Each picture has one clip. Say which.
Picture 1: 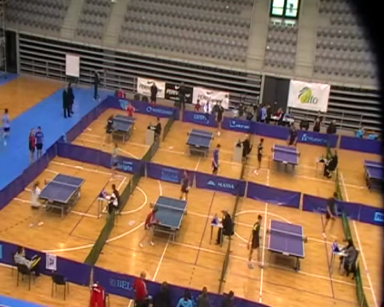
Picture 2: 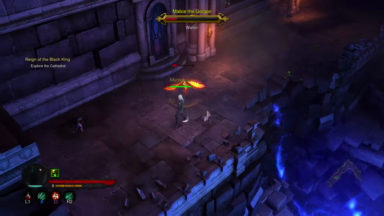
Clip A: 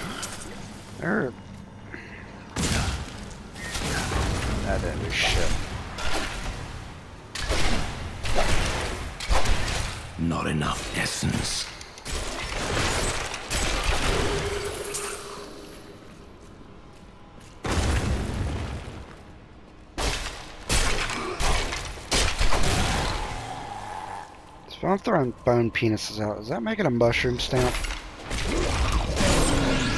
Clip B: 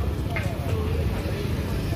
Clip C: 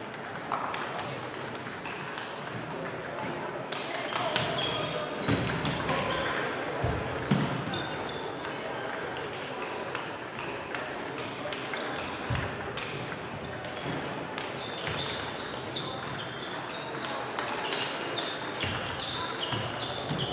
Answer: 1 C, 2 A